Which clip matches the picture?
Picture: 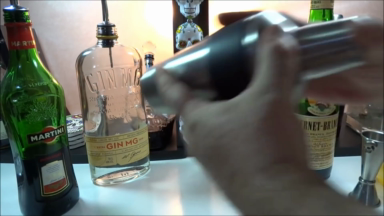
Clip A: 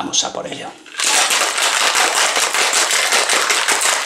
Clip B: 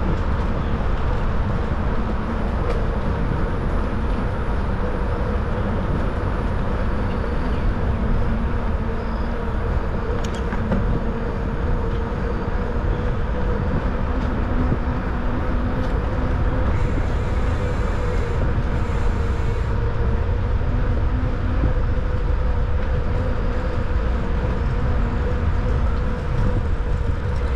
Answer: A